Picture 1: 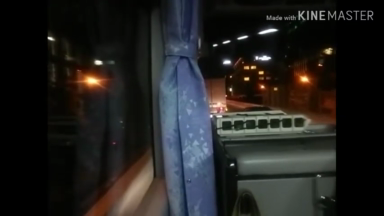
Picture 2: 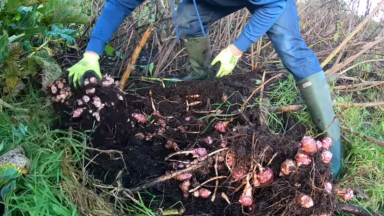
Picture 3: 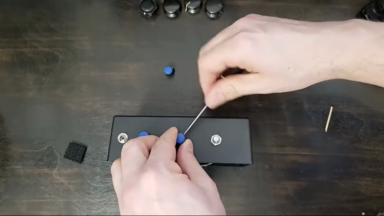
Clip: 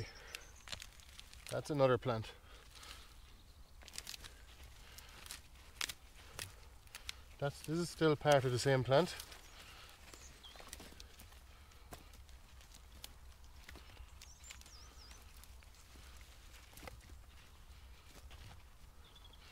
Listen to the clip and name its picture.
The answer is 2